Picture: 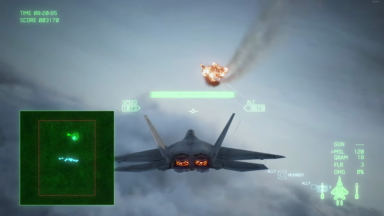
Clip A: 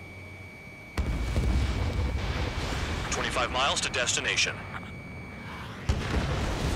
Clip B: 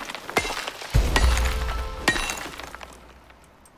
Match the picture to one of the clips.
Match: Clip A